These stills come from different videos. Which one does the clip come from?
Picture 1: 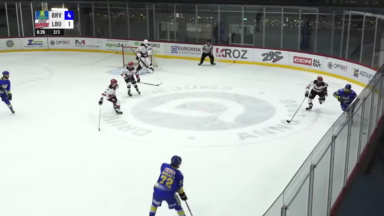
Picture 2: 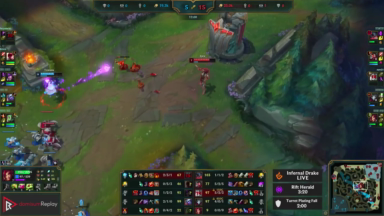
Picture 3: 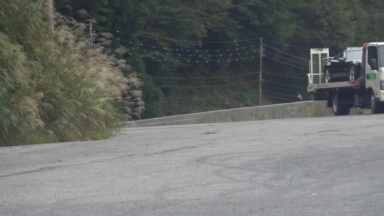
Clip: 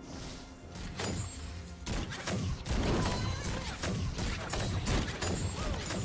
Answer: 2